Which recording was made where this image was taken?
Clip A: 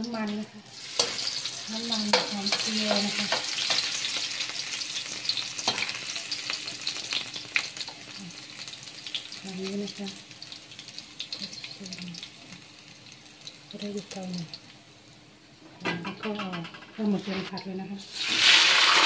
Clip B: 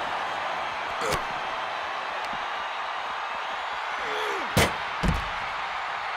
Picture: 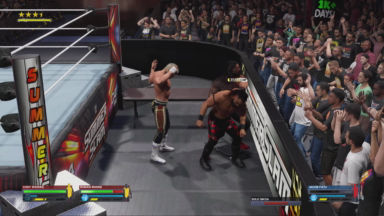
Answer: B